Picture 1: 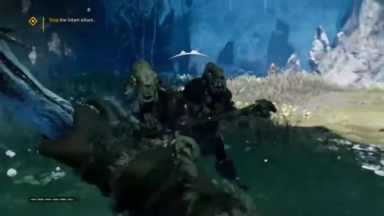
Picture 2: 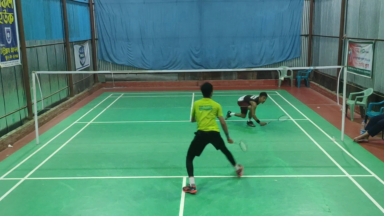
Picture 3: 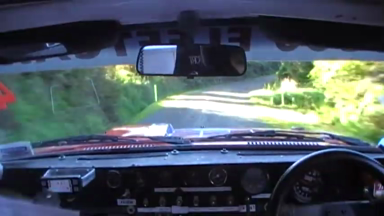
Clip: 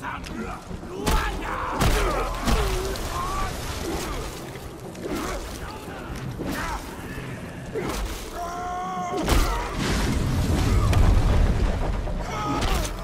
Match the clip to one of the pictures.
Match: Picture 1